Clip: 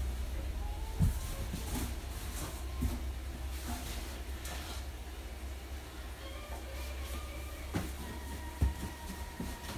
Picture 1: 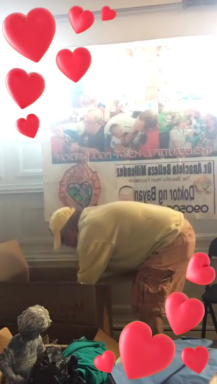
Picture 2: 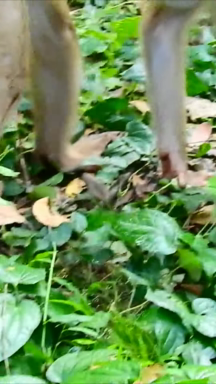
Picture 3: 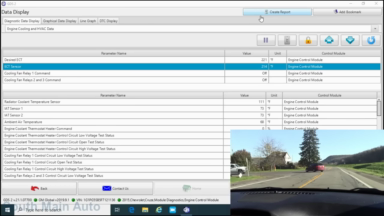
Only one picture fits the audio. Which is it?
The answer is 1